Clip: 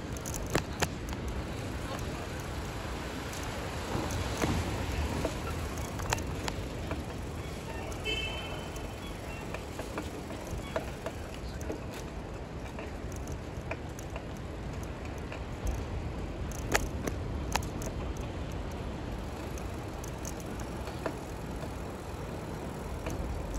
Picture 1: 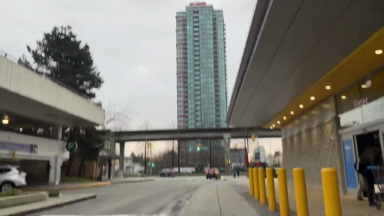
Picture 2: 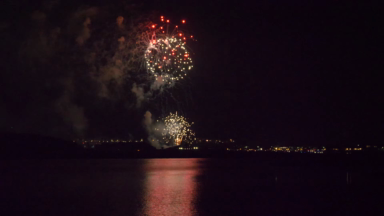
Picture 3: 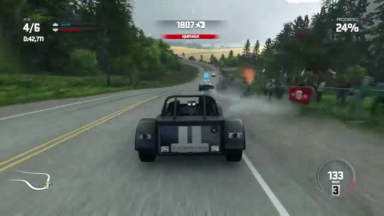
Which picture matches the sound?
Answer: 1